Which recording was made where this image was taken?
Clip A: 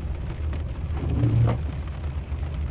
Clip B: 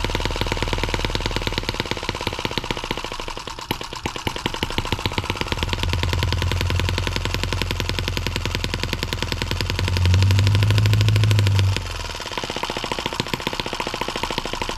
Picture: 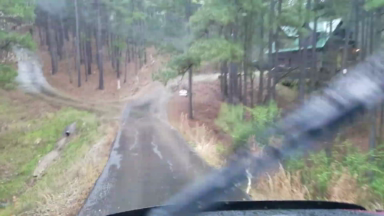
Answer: A